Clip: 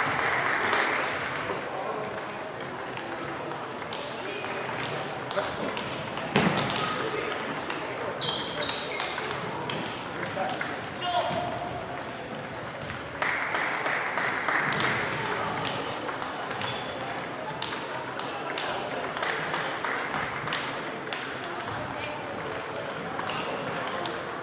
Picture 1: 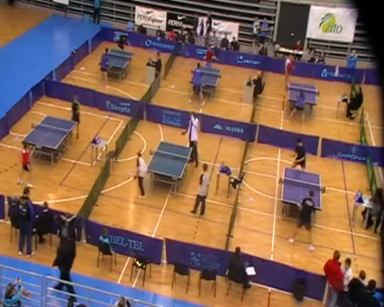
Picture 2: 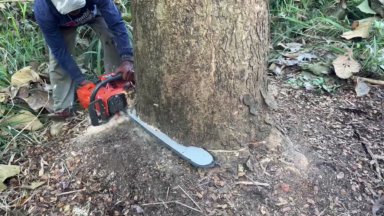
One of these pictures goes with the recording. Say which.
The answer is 1